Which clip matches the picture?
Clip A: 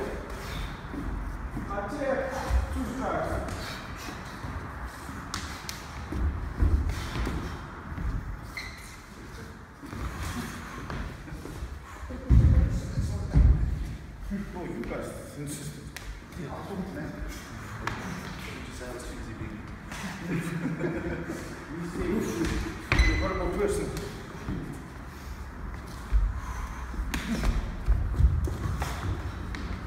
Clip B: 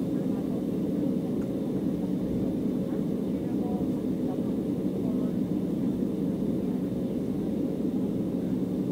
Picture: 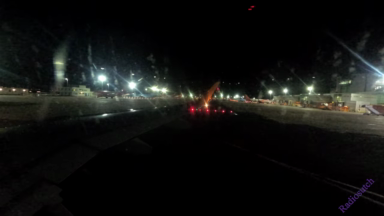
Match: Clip B